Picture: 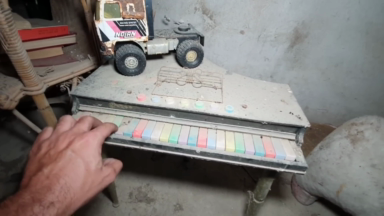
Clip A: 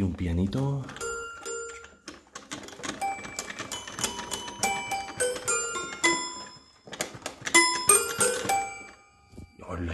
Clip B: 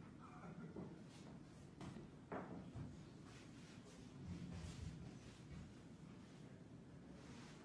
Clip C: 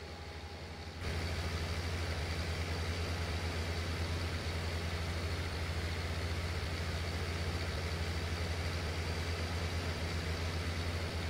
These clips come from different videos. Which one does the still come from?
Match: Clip A